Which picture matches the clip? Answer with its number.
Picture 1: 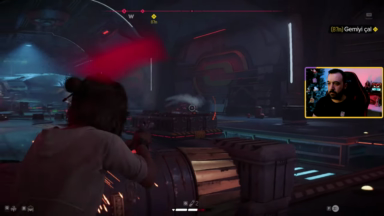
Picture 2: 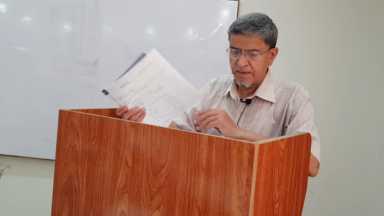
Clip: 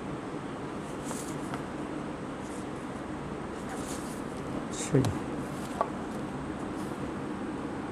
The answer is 2